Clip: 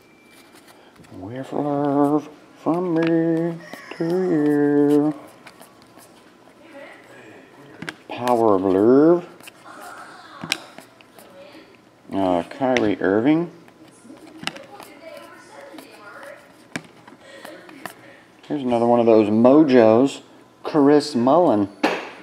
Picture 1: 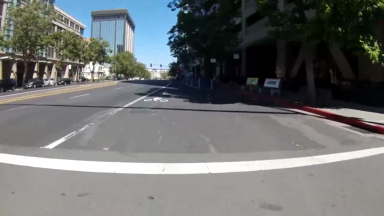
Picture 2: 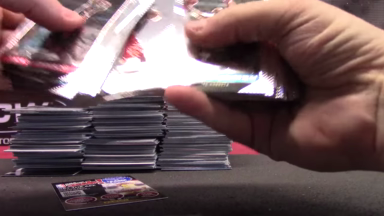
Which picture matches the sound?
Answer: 2